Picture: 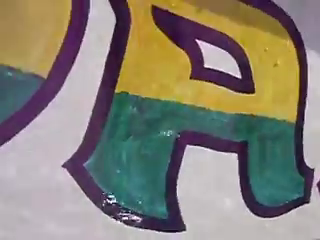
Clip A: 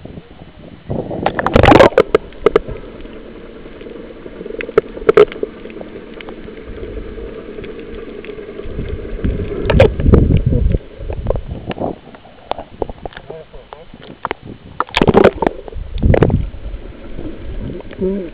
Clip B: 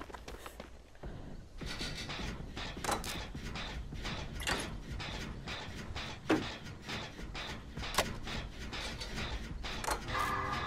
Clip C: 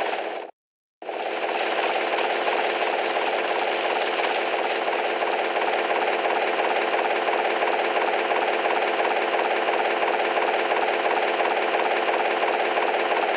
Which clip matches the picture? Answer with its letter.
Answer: A